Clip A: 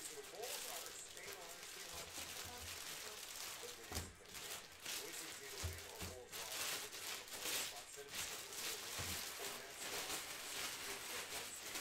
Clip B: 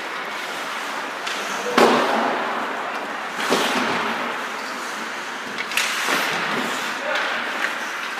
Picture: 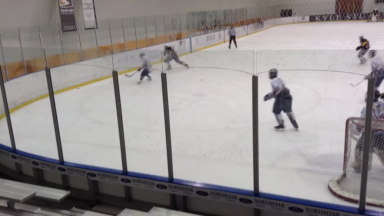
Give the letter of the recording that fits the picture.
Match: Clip B